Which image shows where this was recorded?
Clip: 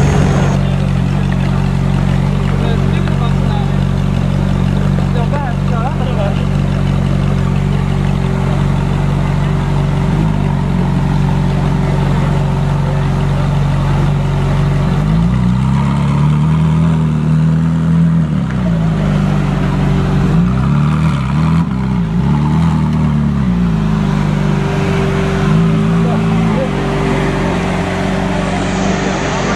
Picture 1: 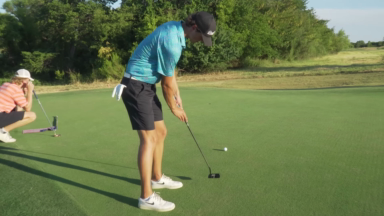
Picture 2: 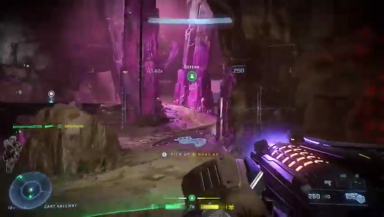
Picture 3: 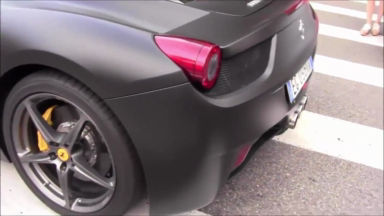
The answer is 3